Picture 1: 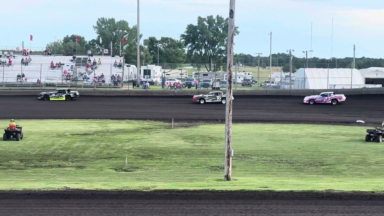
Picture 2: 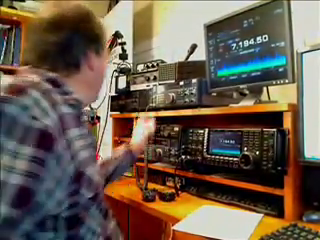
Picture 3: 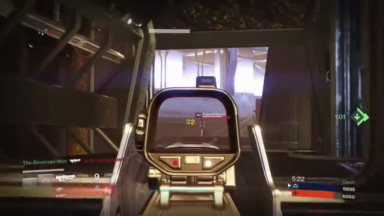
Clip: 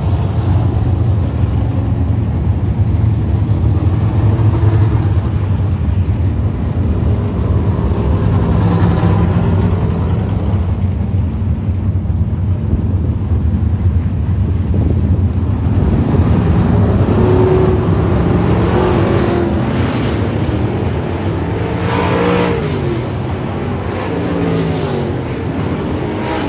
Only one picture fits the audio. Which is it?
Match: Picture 1